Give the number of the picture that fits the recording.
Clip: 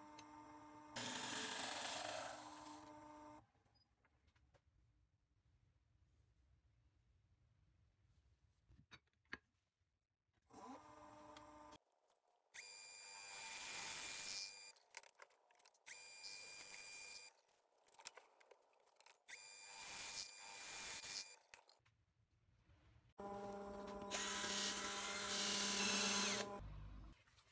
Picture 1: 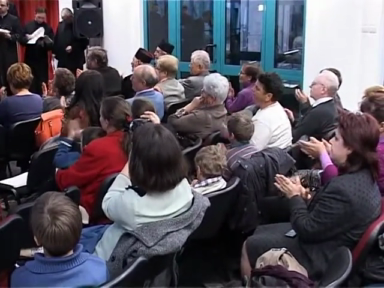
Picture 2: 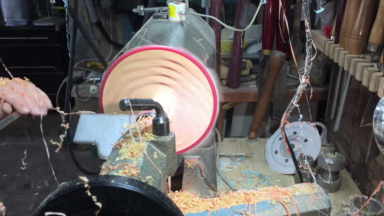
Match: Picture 2